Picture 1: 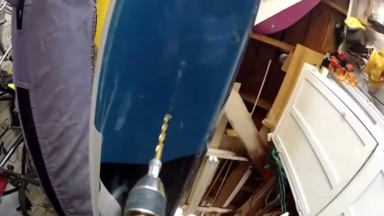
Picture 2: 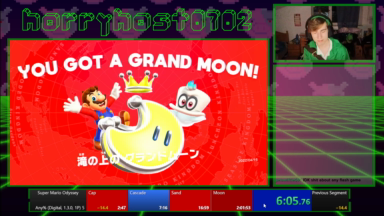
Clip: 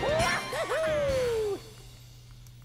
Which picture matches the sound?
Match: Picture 2